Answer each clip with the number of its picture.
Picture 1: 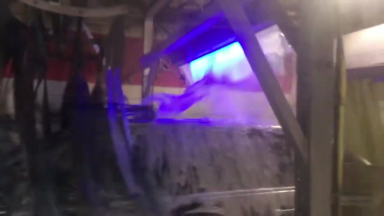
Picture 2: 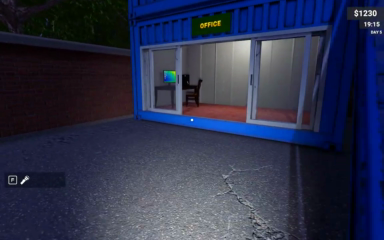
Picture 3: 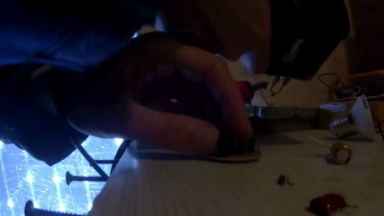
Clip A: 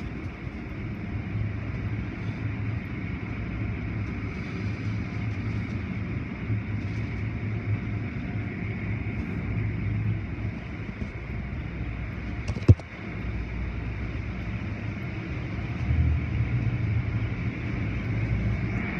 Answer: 1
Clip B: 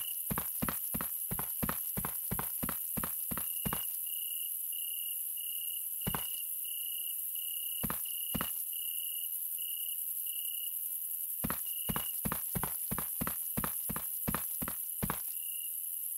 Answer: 2